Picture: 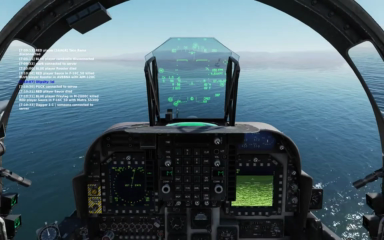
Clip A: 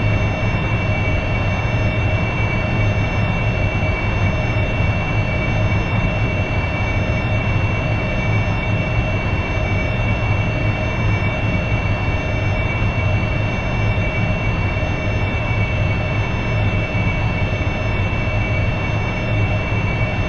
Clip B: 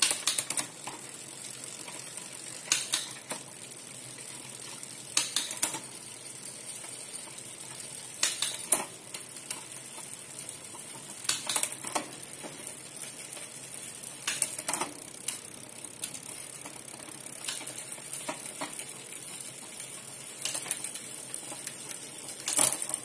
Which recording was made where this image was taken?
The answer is A